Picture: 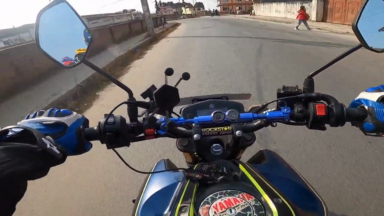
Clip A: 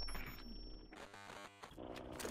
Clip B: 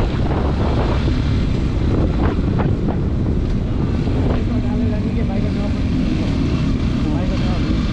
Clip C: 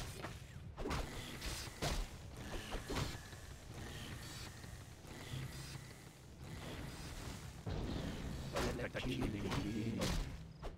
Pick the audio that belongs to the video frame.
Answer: B